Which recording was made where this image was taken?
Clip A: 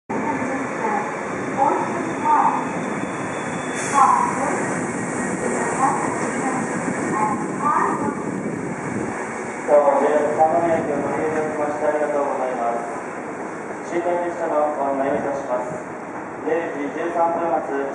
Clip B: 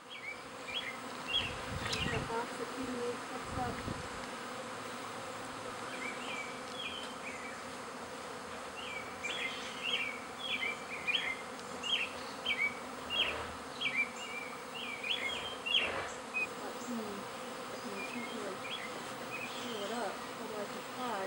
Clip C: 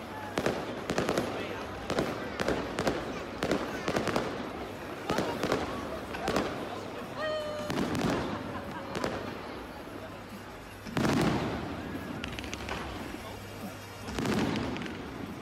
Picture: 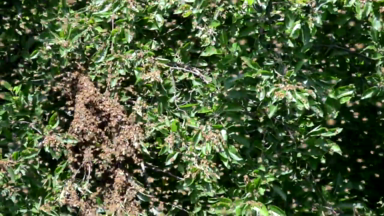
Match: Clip B